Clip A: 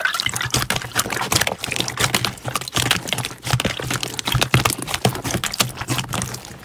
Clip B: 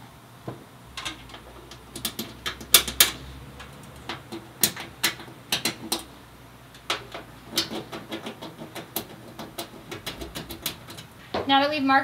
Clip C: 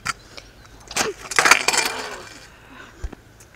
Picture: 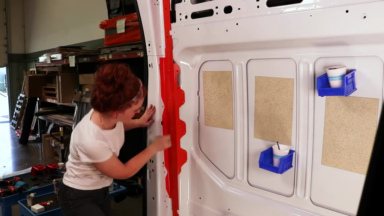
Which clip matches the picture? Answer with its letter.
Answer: B